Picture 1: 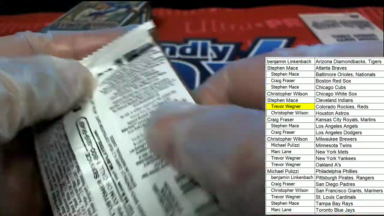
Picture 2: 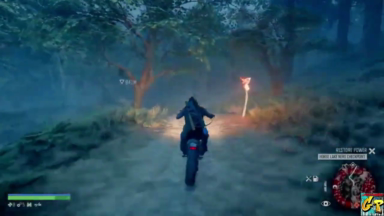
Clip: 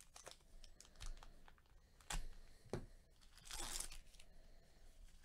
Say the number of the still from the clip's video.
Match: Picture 1